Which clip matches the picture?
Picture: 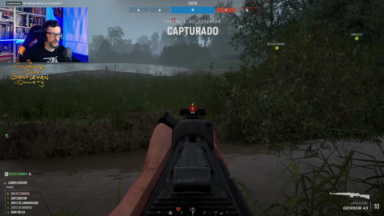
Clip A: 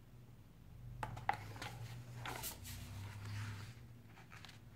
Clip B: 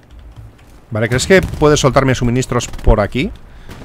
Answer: B